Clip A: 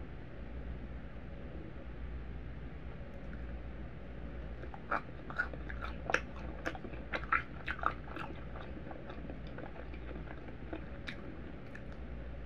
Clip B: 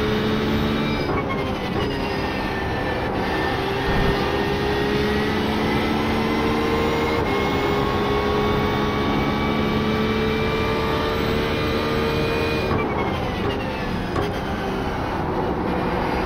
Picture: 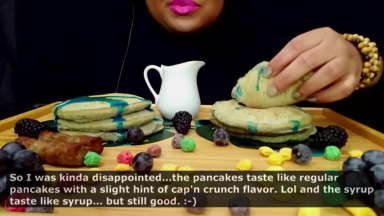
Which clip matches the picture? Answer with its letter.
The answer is A